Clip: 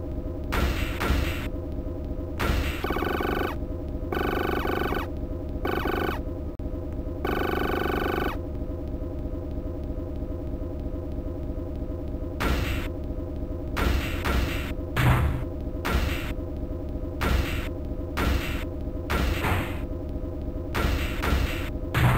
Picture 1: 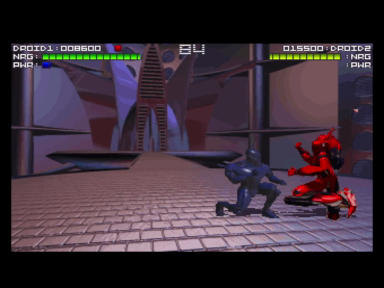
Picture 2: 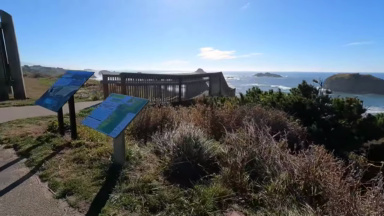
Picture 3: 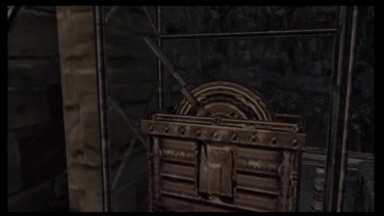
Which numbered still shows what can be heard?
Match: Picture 1